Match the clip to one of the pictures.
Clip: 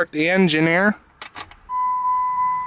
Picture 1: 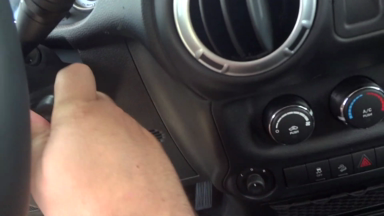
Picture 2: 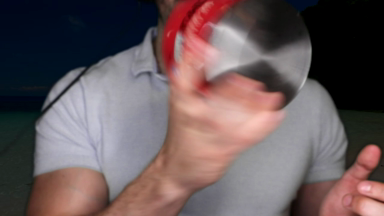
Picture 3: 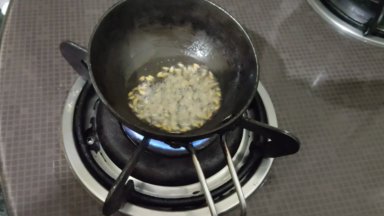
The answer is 1